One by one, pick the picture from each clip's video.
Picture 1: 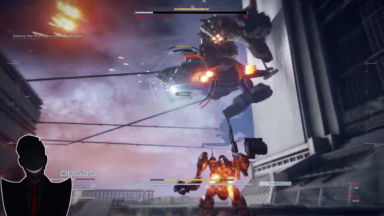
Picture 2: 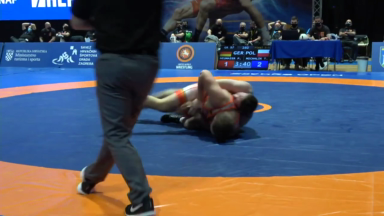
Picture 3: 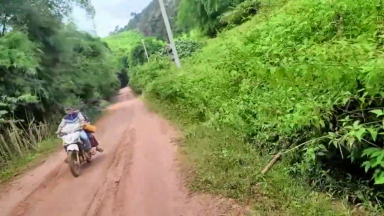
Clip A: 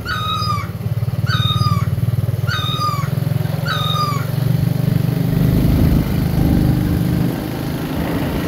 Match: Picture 3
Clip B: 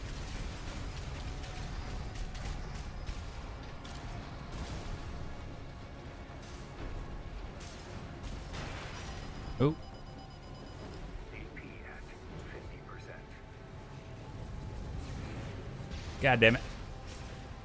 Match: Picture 1